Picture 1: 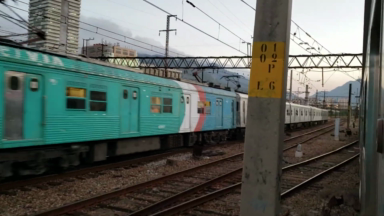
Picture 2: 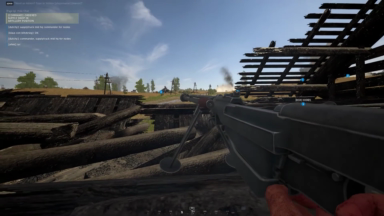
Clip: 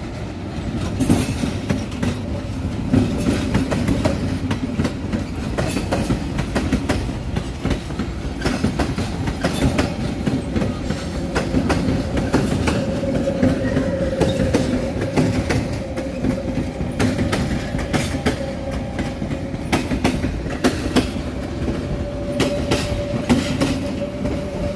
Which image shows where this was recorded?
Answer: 1